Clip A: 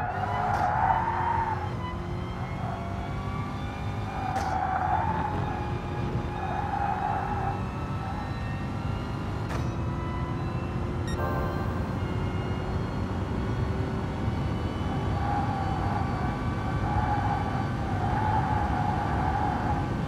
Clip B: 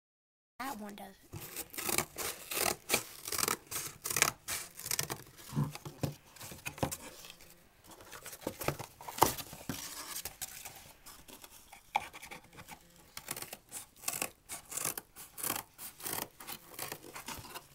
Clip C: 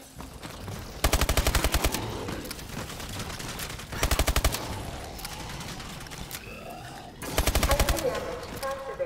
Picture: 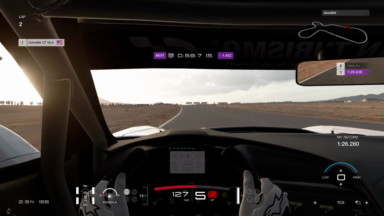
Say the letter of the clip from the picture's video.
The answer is A